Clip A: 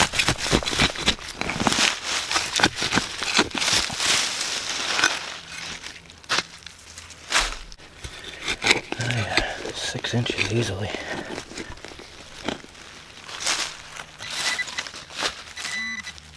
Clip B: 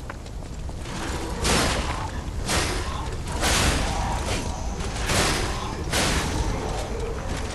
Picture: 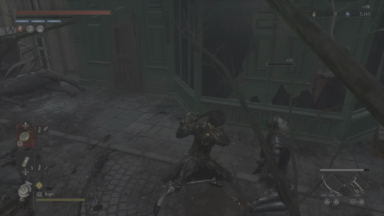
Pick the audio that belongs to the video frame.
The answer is B